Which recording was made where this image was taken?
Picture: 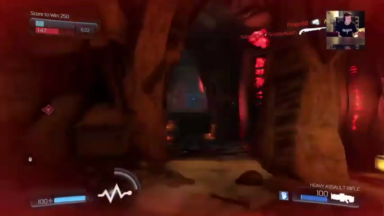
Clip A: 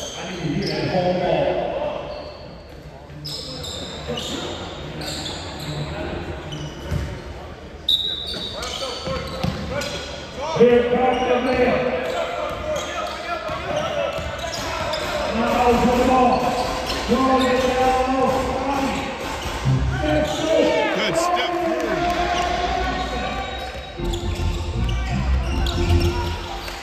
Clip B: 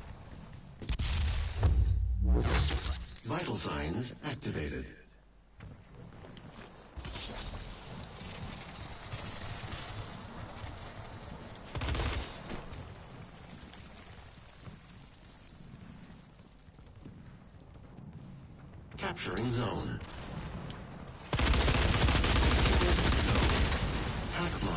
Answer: B